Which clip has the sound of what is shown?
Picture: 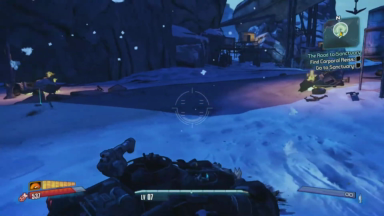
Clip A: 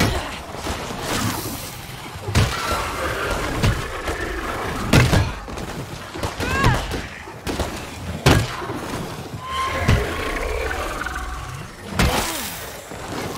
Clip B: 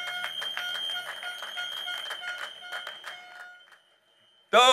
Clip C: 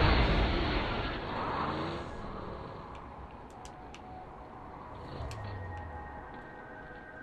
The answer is C